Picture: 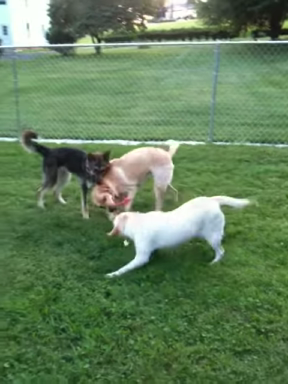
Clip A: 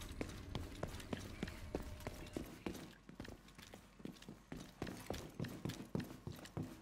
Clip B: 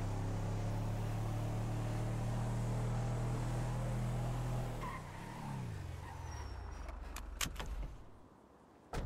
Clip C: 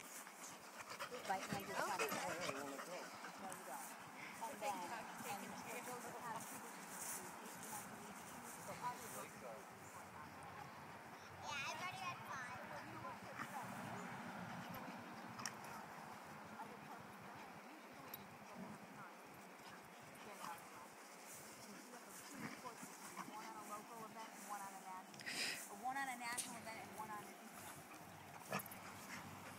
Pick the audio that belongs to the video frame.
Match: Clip C